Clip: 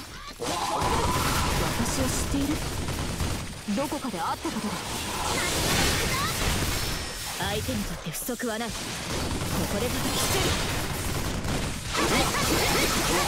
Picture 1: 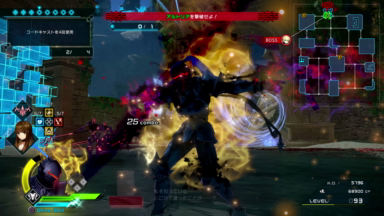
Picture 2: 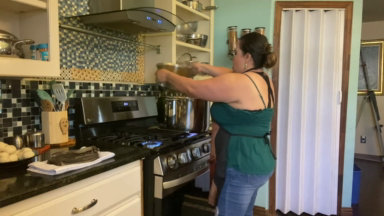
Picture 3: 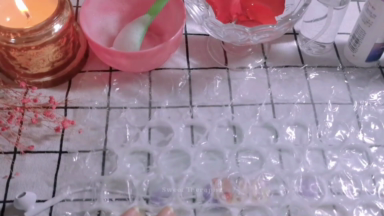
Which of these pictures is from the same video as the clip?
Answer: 1